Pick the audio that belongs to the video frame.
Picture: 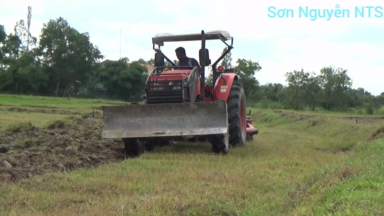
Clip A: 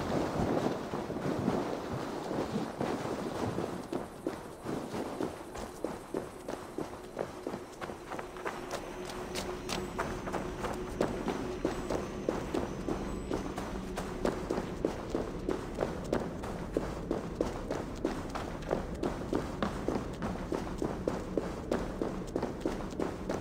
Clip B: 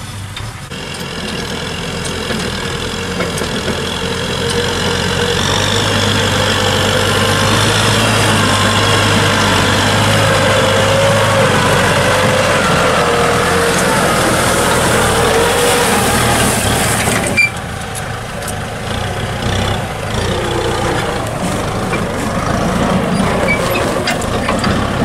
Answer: B